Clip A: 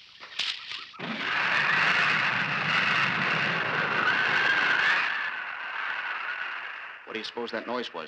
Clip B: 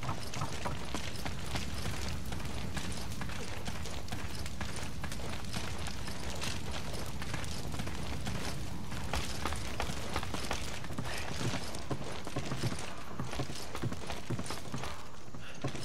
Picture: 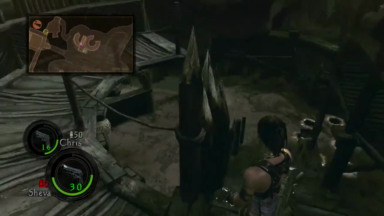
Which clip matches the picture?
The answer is B